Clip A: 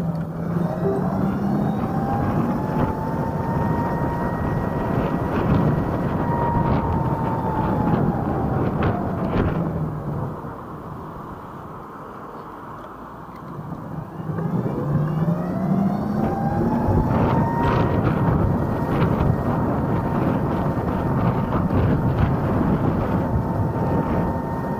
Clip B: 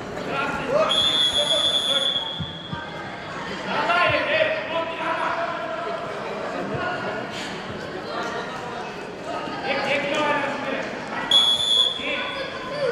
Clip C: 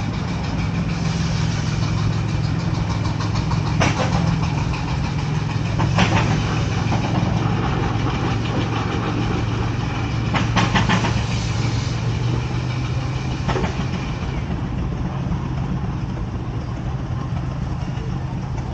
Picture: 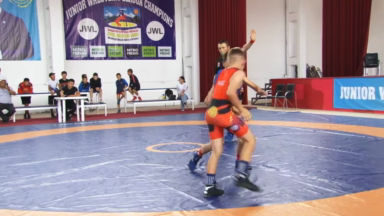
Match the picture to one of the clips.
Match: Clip B